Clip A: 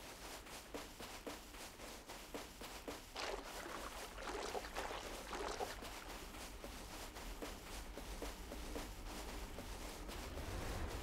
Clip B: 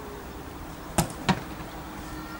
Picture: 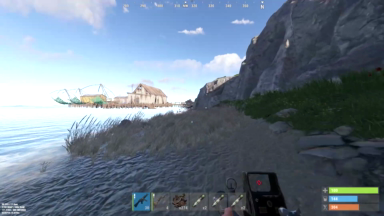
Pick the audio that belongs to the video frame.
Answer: A